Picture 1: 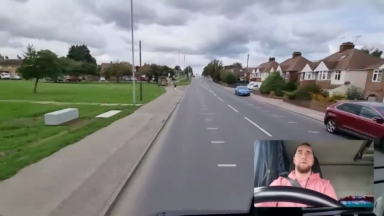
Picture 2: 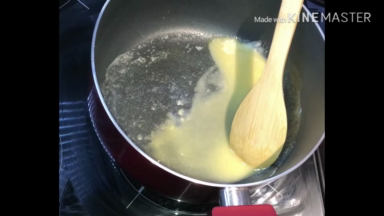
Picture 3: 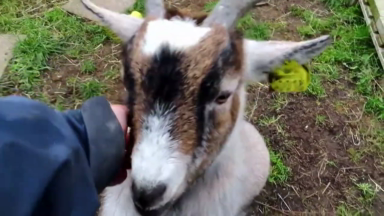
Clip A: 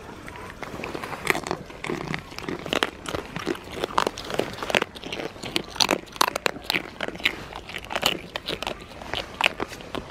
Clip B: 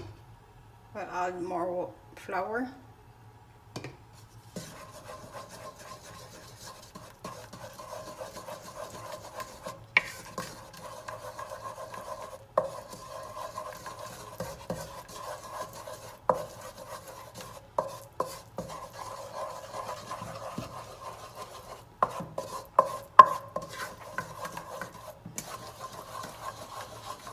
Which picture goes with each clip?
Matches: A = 3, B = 2